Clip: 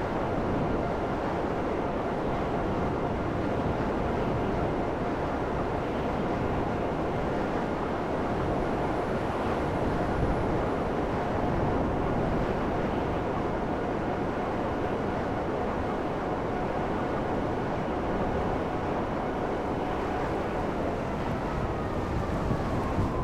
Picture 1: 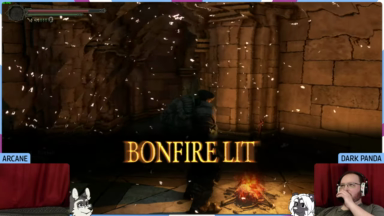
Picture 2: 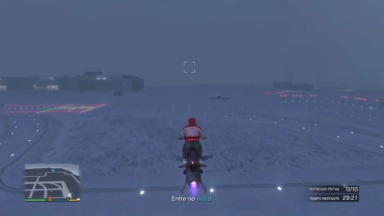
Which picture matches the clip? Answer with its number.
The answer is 2